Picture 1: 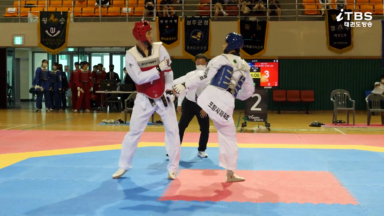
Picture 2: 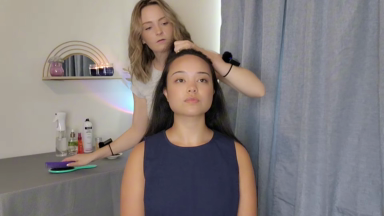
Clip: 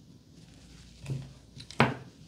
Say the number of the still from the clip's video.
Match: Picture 2